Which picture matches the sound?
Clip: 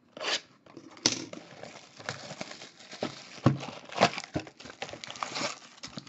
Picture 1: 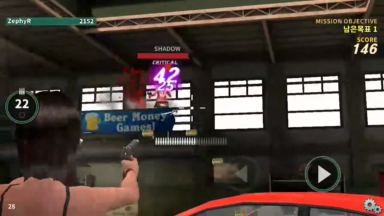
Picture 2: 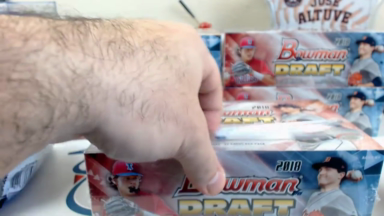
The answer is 2